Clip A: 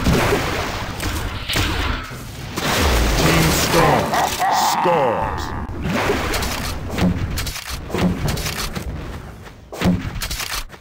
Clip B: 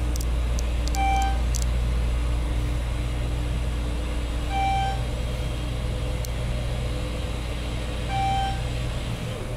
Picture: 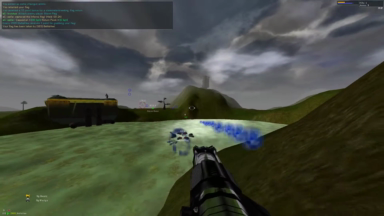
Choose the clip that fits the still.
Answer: A